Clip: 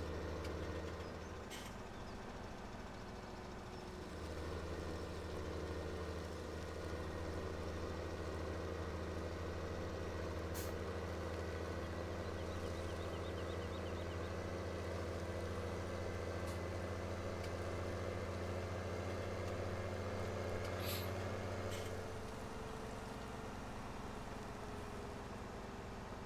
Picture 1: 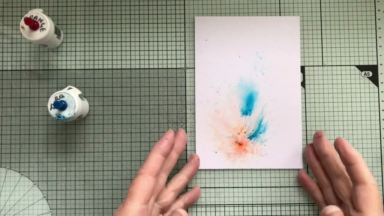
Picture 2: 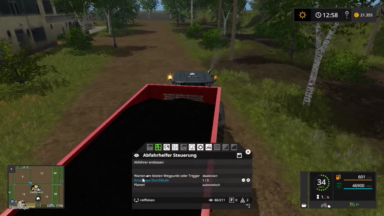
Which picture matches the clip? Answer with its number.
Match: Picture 2